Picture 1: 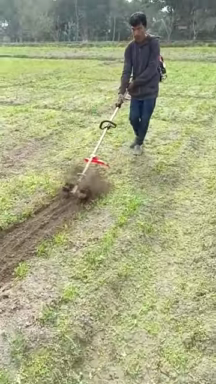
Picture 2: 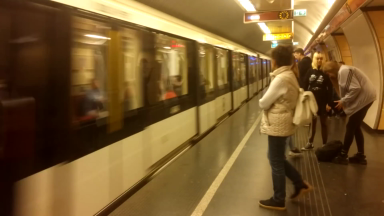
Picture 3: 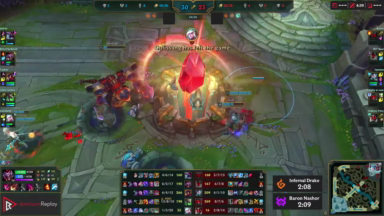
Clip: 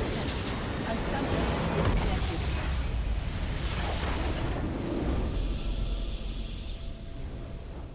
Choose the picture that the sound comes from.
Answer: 3